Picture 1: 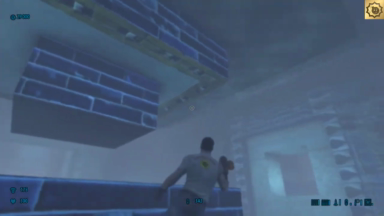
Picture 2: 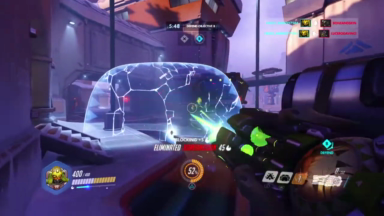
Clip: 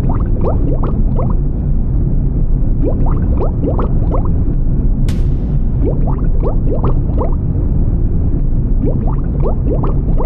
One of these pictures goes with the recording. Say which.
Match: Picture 1